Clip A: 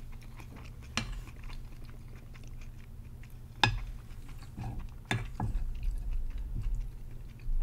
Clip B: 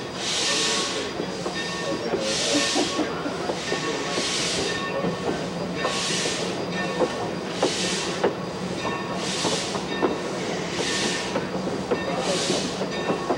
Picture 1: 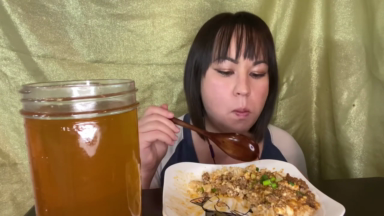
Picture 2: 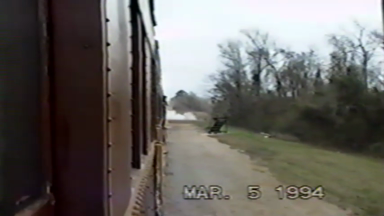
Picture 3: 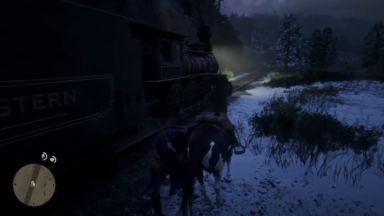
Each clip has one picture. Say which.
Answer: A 1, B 2